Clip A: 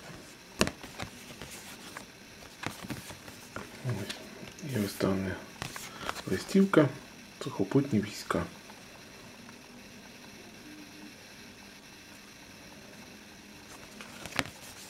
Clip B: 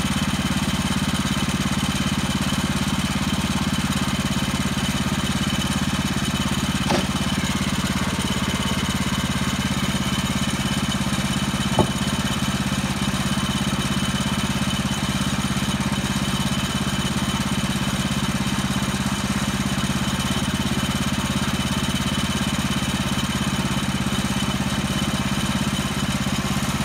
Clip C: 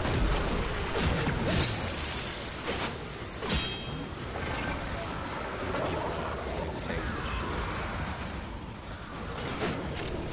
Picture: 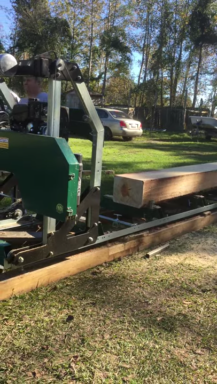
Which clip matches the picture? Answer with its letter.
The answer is B